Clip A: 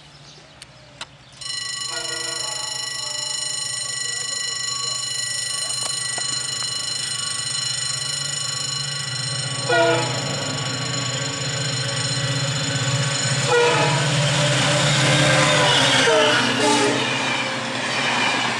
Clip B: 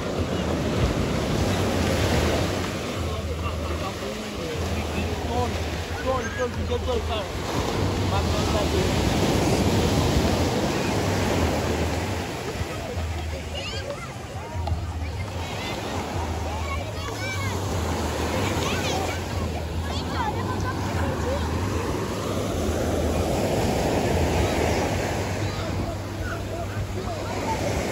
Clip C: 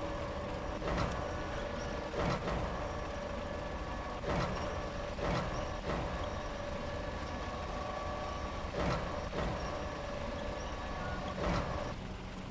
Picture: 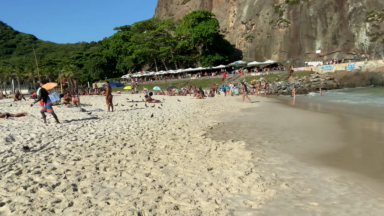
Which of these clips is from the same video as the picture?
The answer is B